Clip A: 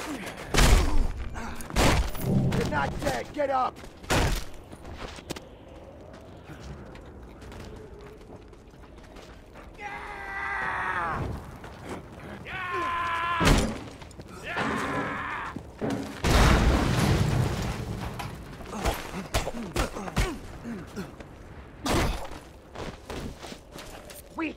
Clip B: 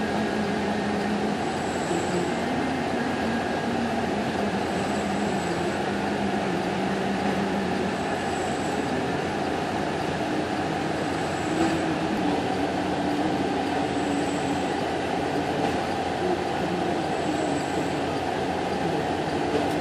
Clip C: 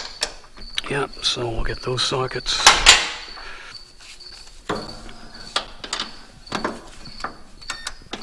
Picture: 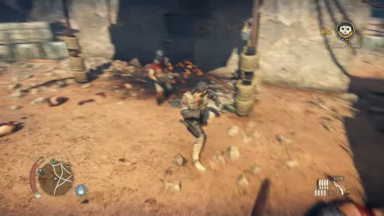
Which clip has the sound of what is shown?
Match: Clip A